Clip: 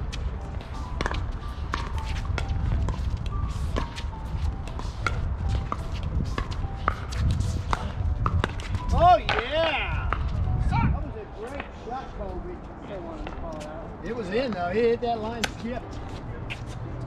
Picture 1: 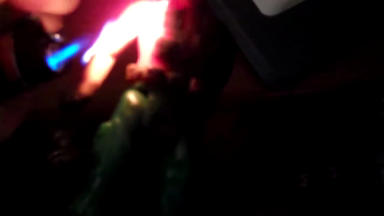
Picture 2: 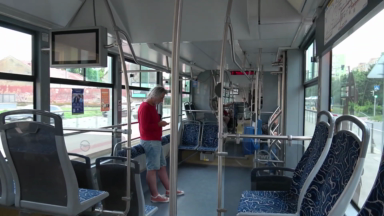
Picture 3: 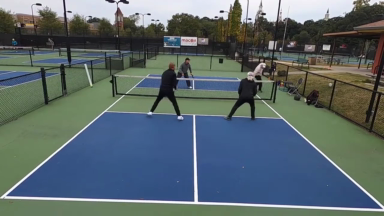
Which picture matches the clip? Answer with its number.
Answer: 3